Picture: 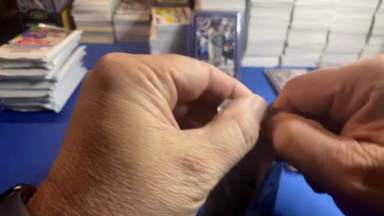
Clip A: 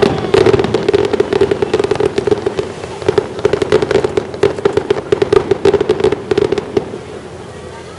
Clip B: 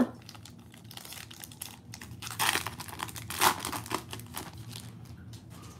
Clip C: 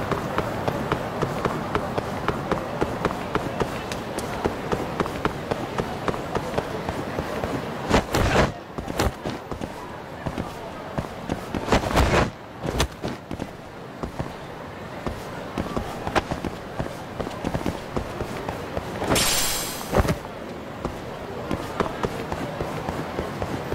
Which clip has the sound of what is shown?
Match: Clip B